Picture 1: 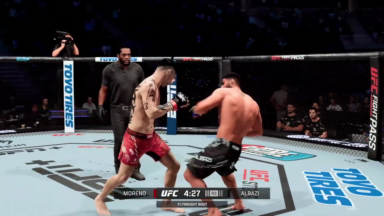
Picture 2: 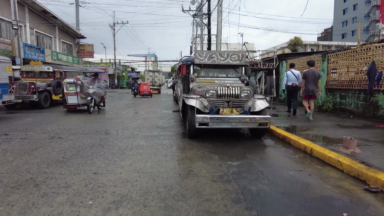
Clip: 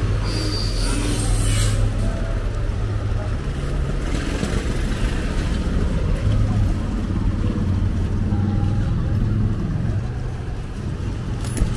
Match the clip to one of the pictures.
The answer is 2